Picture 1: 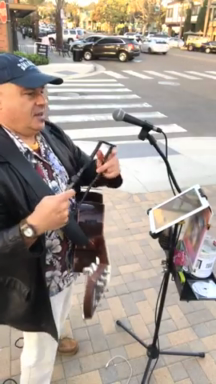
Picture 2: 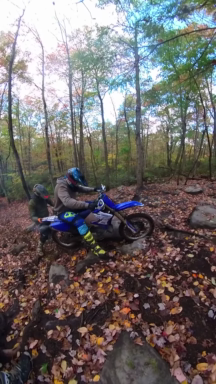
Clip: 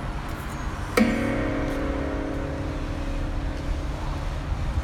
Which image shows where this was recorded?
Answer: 1